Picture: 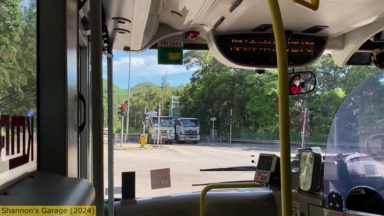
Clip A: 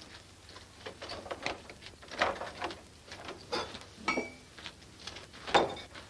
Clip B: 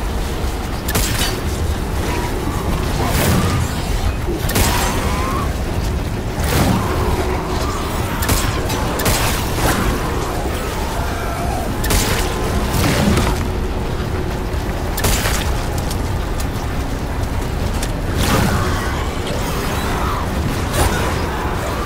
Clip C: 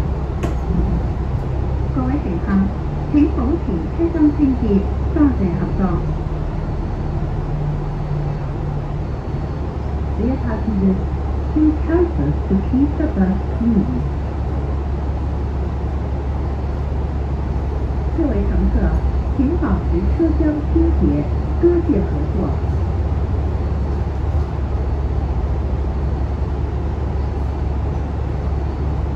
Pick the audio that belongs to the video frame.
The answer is C